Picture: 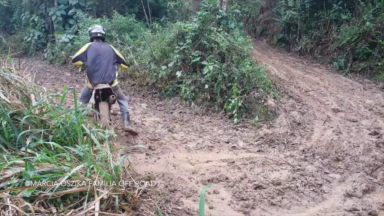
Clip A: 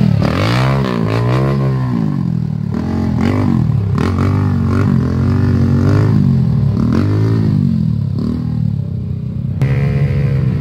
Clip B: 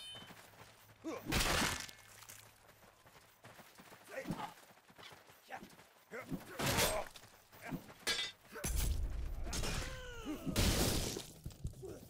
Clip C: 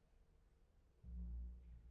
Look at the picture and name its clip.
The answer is A